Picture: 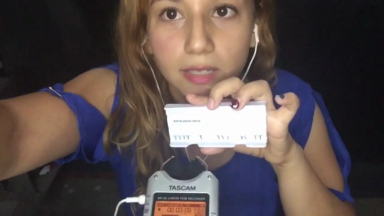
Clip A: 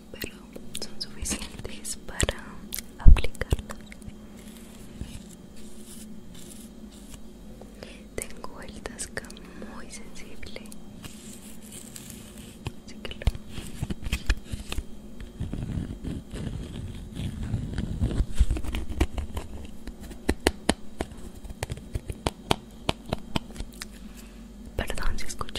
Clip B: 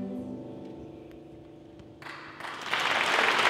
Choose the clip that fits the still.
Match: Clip A